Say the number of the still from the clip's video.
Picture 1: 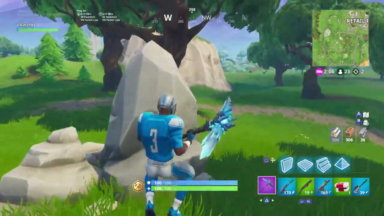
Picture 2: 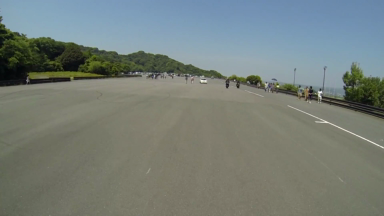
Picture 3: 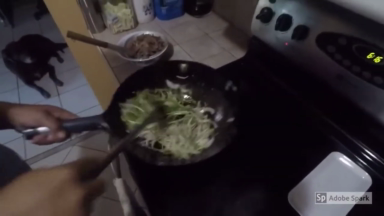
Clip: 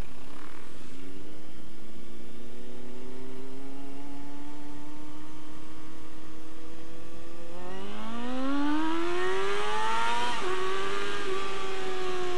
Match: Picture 2